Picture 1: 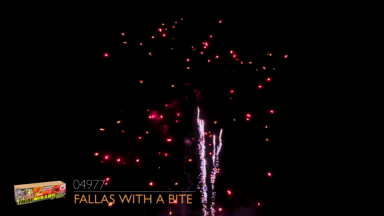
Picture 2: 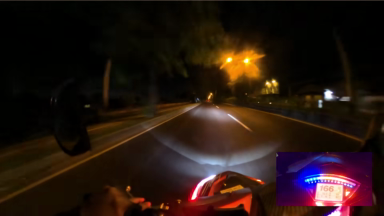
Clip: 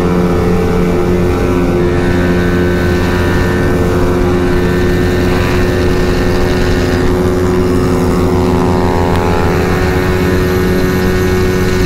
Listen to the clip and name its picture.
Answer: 2